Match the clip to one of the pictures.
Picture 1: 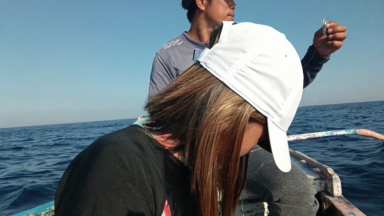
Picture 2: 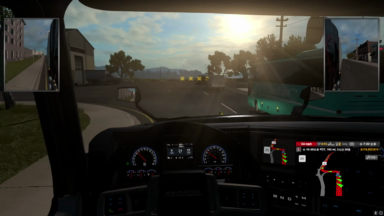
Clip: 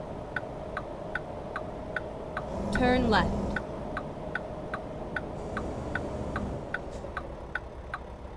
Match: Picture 2